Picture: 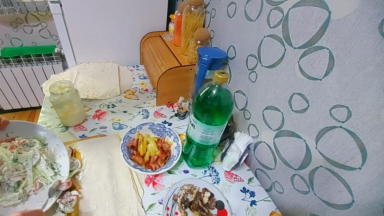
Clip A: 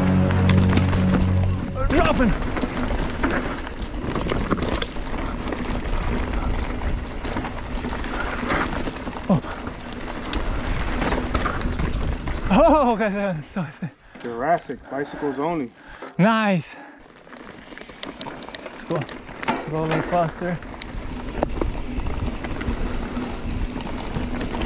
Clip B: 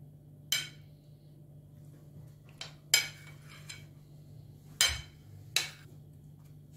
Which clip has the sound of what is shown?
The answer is B